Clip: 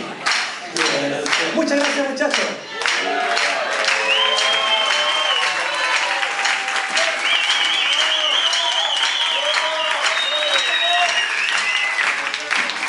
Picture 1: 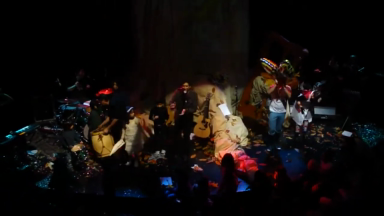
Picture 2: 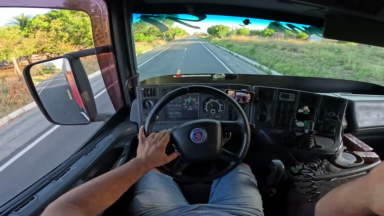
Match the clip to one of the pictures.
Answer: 1